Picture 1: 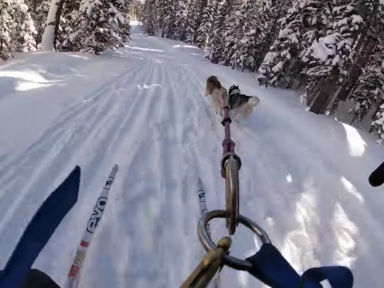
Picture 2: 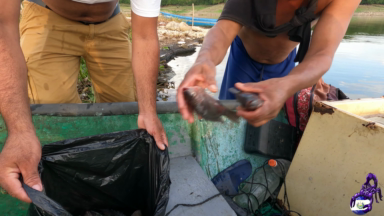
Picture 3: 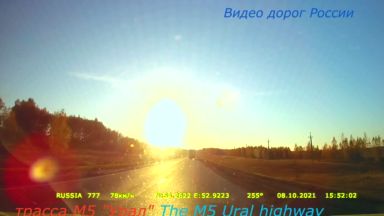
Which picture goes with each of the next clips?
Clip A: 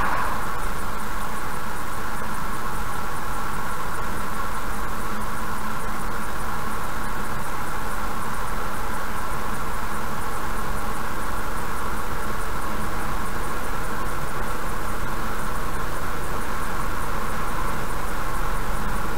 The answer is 3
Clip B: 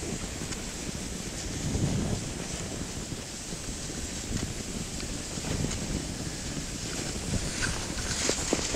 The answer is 1